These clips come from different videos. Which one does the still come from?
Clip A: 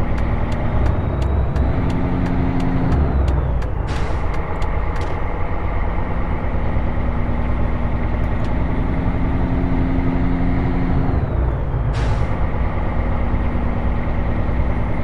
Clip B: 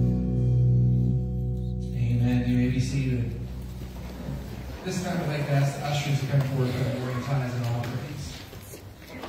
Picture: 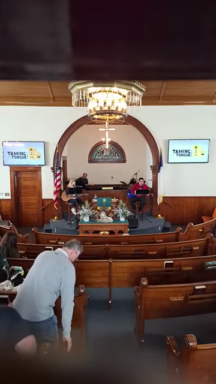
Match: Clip B